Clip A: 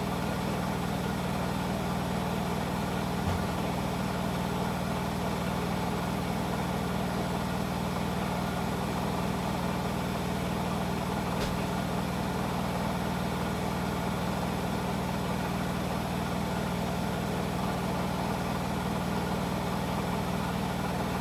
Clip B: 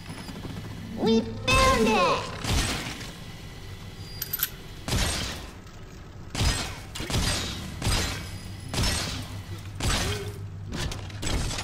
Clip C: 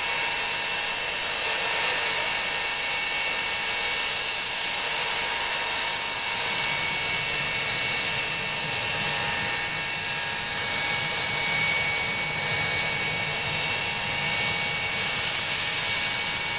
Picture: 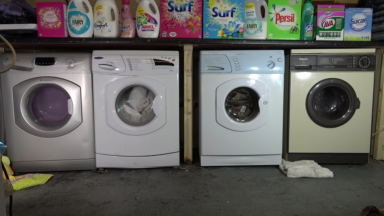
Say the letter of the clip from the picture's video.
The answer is A